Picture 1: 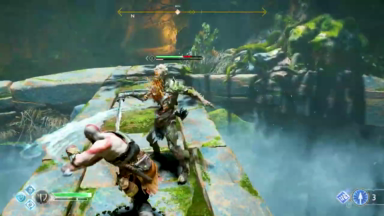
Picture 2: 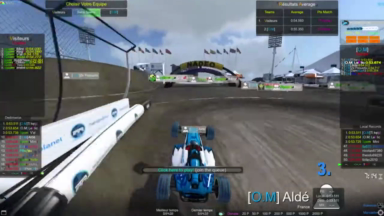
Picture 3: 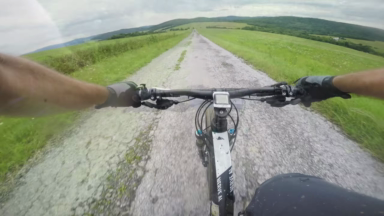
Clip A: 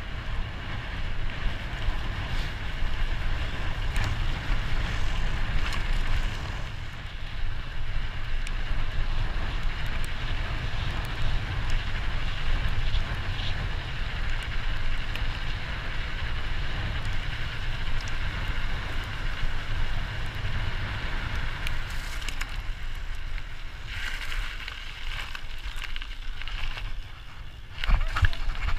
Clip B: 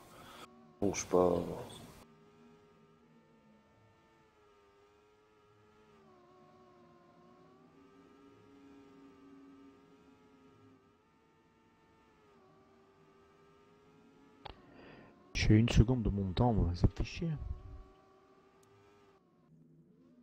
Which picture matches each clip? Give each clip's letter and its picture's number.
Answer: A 3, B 2